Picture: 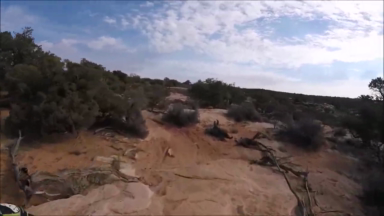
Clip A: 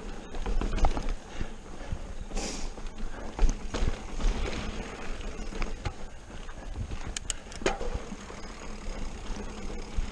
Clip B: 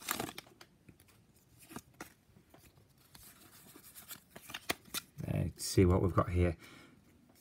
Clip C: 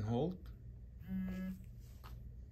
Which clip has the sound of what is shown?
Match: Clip A